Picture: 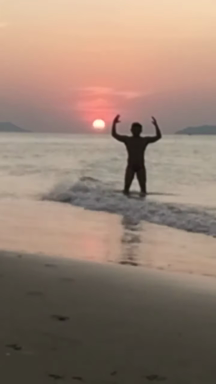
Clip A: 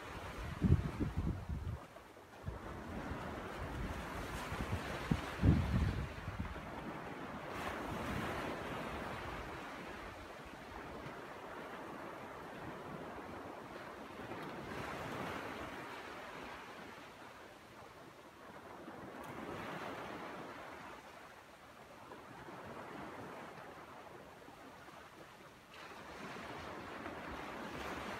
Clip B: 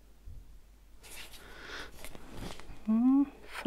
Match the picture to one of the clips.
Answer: A